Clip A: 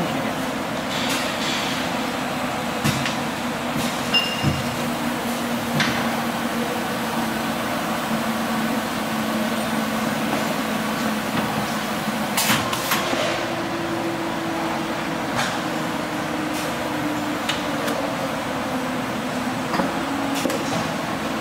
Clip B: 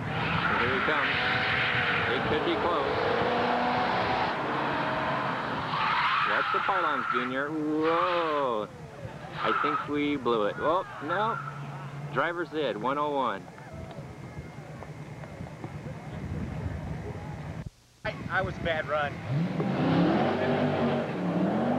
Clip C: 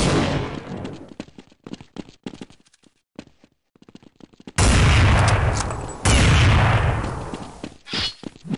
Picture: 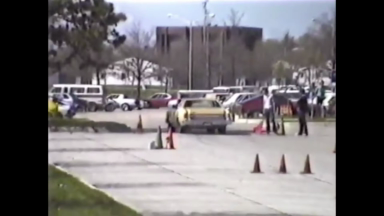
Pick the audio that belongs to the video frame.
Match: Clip B